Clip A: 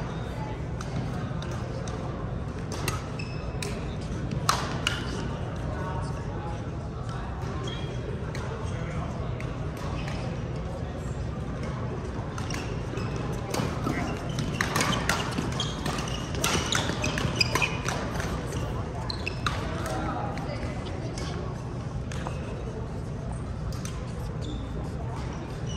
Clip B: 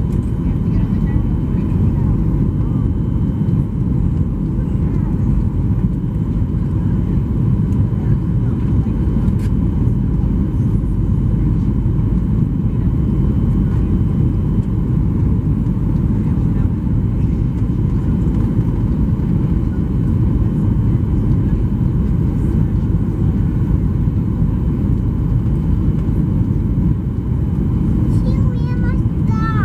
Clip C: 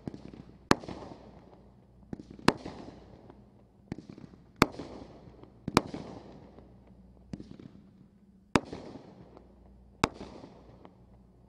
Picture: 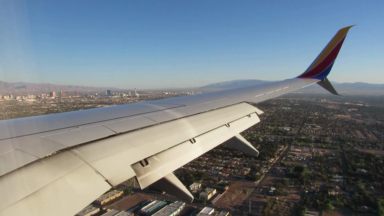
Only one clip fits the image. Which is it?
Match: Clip B